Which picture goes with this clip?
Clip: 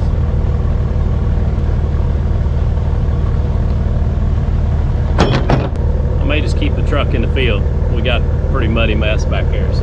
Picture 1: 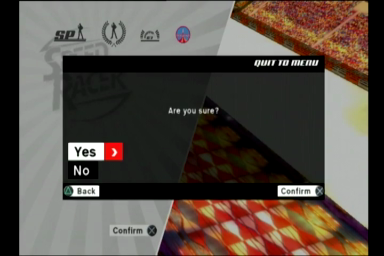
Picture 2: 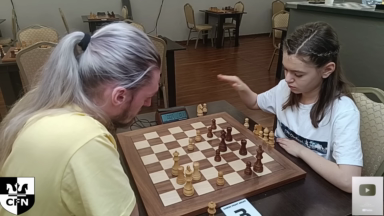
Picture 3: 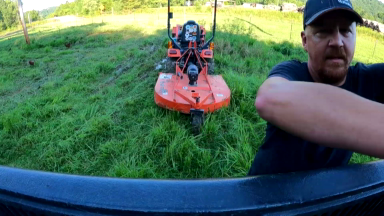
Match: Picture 3